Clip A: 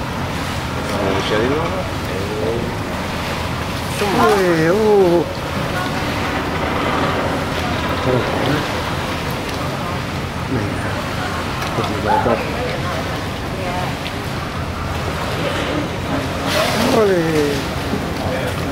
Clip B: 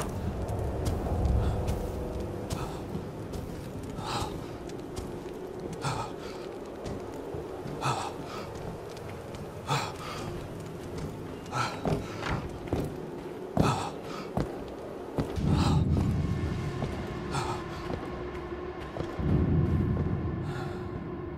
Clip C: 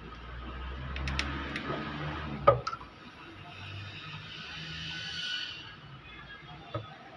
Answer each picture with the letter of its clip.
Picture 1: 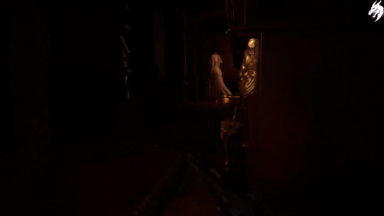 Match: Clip B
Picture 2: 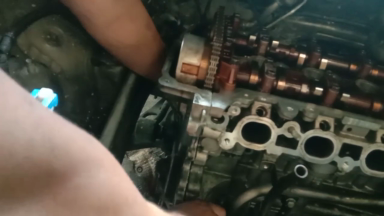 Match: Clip C